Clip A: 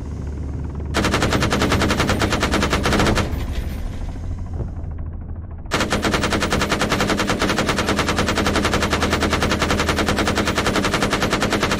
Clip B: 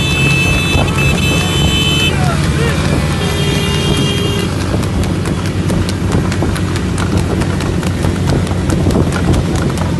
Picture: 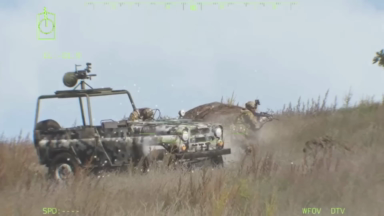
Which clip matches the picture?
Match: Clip A